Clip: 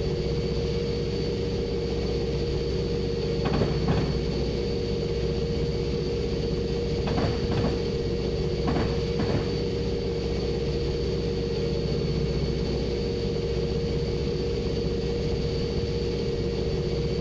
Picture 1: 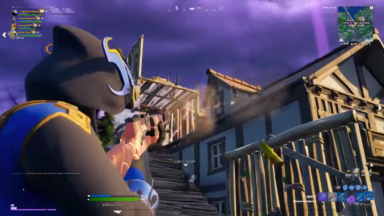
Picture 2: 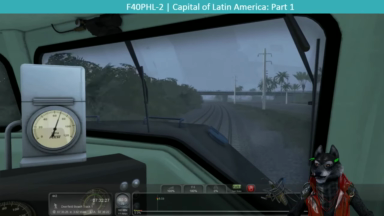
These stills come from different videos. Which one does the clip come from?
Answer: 2